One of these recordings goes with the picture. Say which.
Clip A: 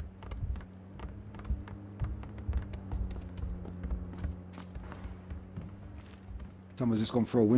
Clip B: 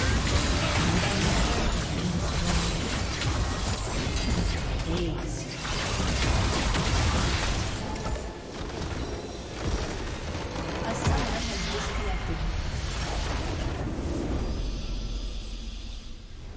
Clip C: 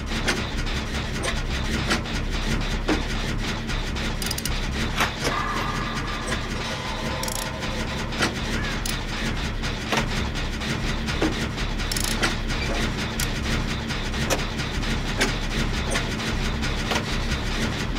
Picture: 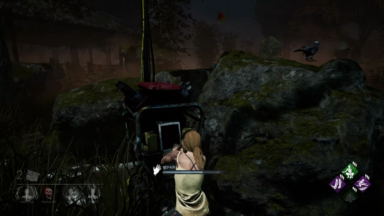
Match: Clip C